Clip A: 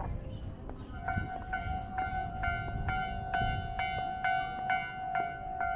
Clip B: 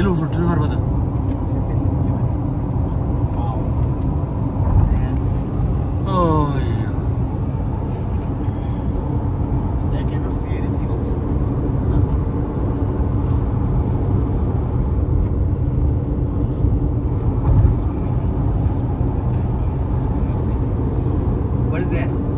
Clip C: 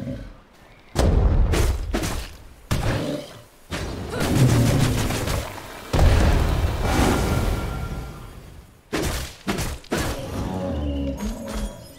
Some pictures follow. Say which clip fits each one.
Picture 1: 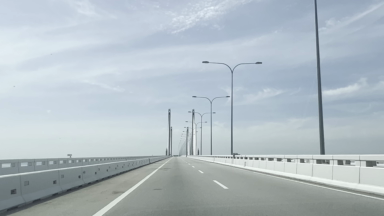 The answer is B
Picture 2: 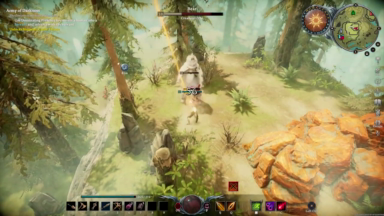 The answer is C